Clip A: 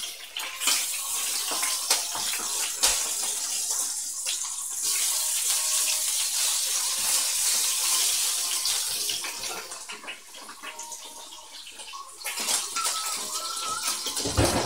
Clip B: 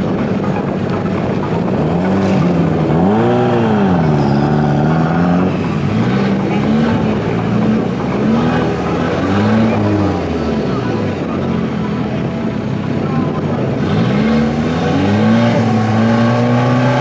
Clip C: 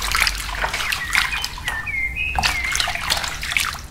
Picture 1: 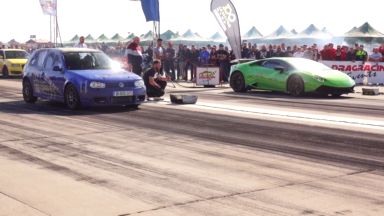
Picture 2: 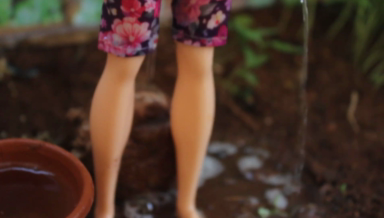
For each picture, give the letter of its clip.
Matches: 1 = B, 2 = C